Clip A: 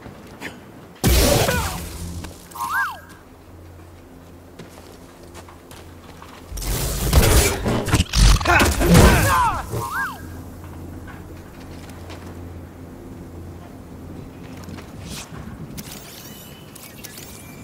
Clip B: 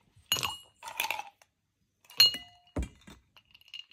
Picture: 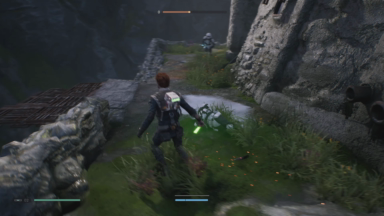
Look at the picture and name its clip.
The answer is A